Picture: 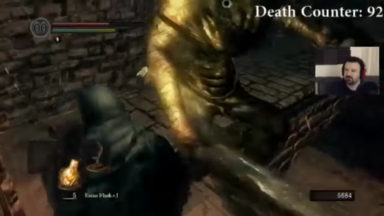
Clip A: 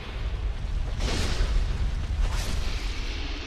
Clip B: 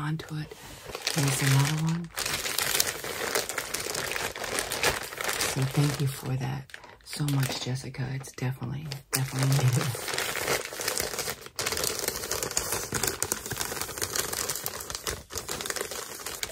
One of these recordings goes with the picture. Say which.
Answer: A